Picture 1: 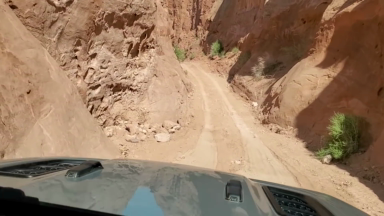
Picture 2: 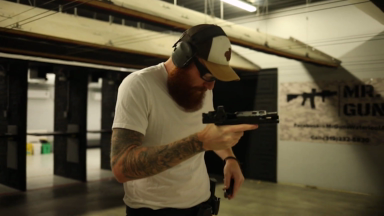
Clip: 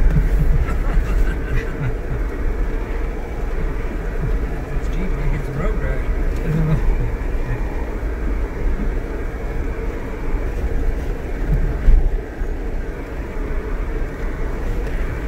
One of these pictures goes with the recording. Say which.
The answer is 1